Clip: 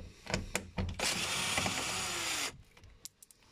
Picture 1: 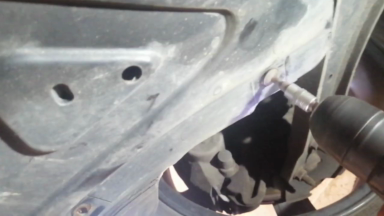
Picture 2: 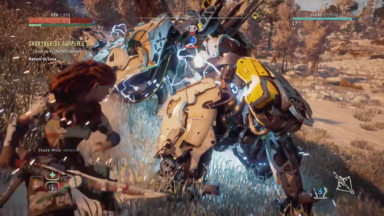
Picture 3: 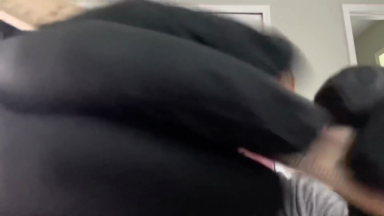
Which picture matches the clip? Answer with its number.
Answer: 1